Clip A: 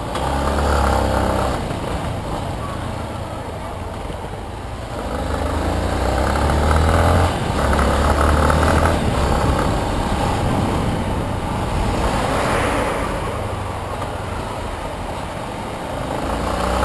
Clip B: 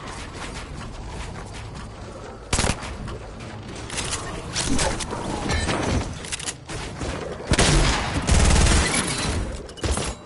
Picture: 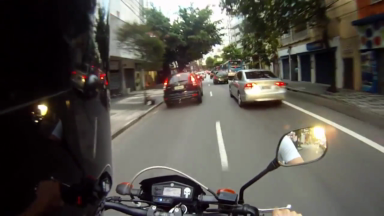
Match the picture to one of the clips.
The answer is A